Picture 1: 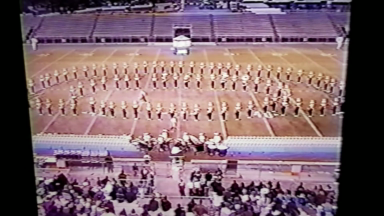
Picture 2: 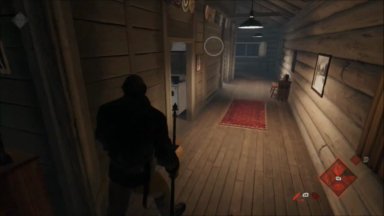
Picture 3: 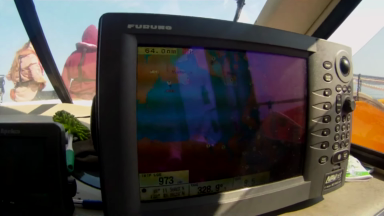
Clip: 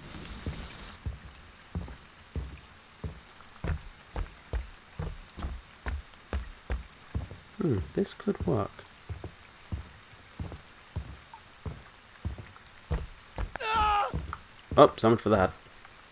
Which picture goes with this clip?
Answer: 2